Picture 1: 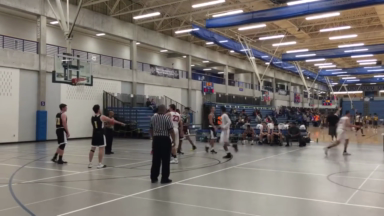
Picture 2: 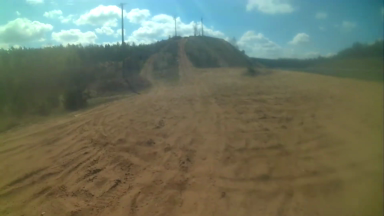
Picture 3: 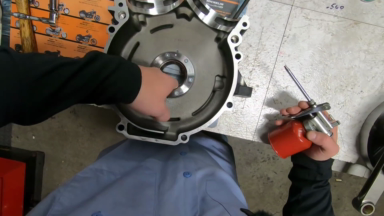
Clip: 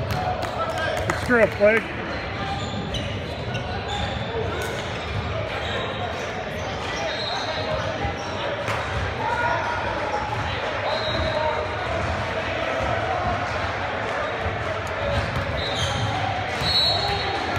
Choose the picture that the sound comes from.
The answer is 1